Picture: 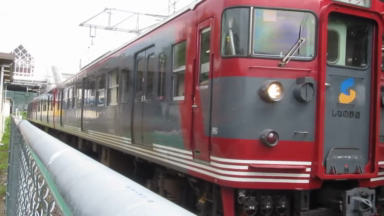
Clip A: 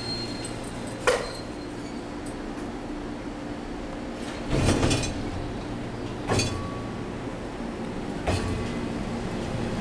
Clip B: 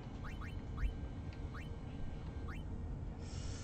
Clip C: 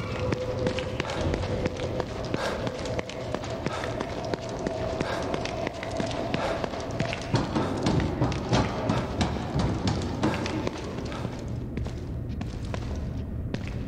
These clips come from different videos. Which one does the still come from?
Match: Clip A